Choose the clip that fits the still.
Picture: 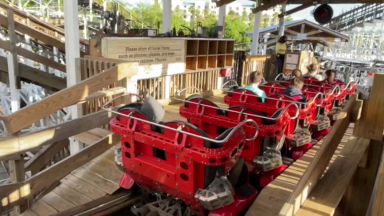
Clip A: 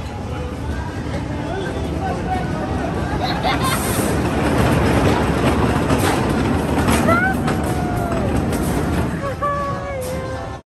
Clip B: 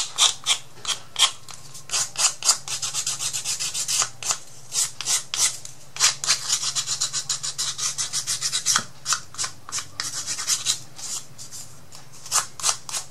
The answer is A